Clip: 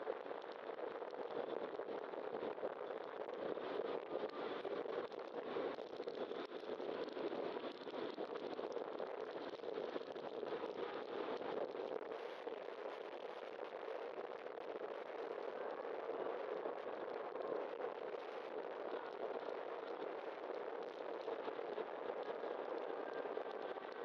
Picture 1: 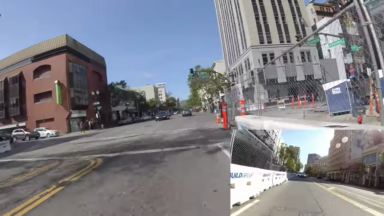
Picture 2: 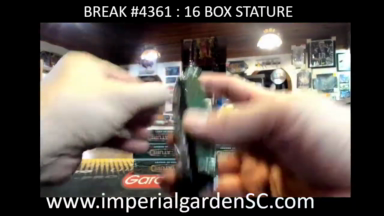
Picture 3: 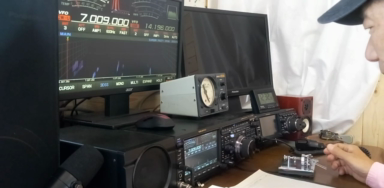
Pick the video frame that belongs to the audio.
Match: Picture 1